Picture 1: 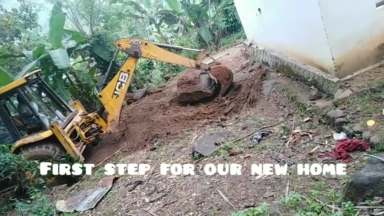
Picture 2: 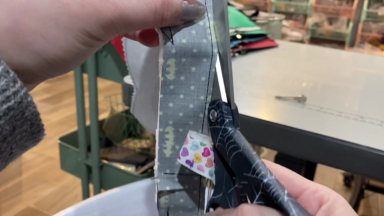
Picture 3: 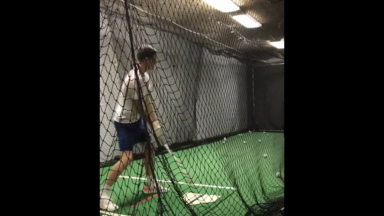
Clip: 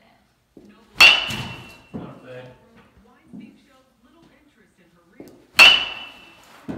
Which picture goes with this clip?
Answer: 3